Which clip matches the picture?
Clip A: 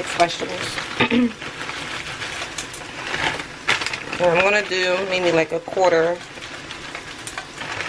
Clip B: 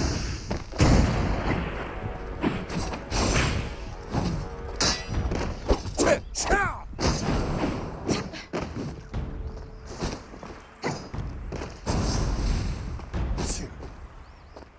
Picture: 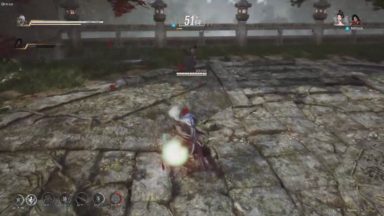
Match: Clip B